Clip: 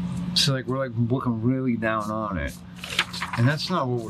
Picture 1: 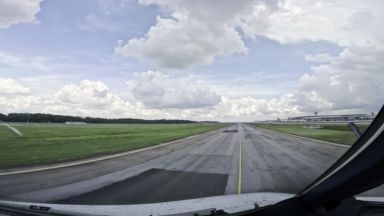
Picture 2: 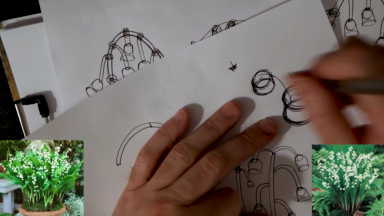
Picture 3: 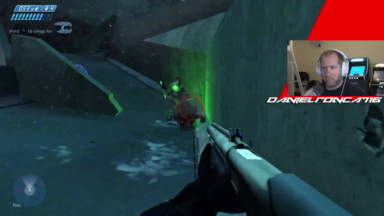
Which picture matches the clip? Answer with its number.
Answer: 2